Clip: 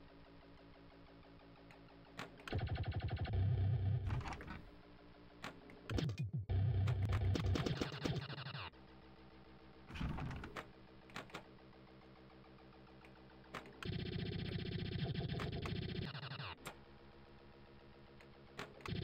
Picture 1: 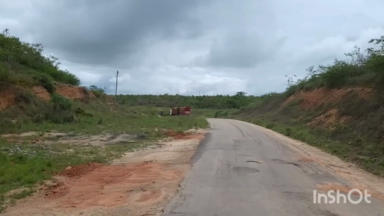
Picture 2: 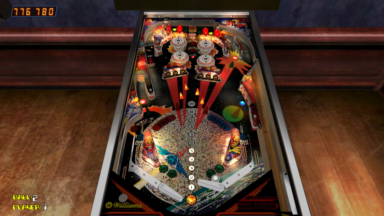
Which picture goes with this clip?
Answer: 2